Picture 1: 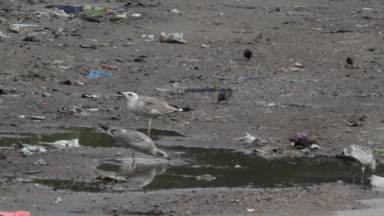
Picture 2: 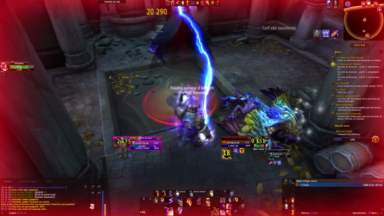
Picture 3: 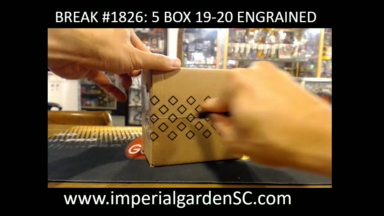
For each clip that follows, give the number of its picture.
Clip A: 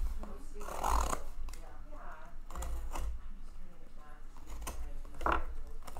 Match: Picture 3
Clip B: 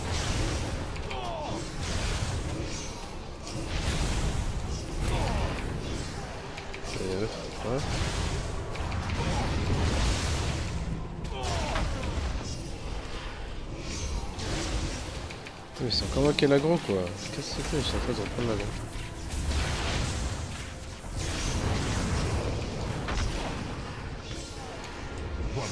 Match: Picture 2